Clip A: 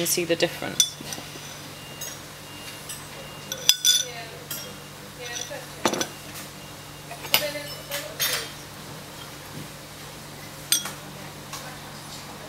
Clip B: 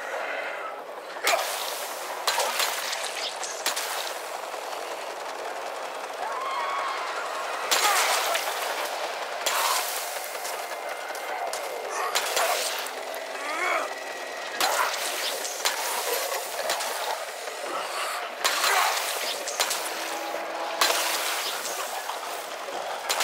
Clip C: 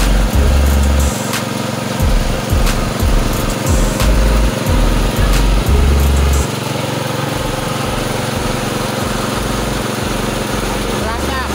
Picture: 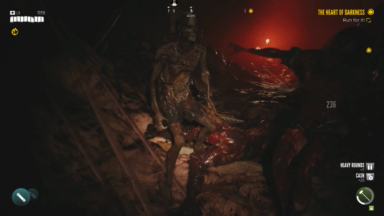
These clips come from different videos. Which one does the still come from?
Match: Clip B